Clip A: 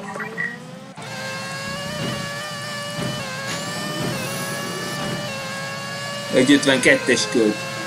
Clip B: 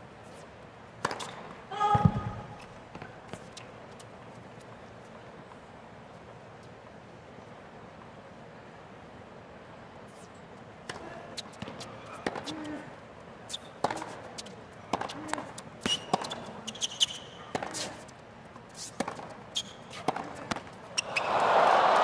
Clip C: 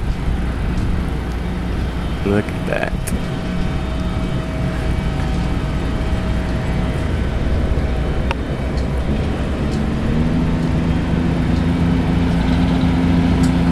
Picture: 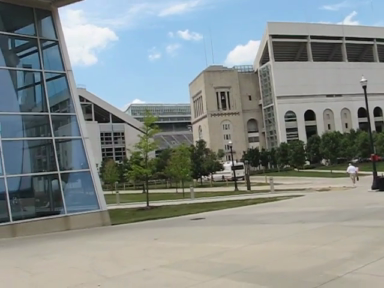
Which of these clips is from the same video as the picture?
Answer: C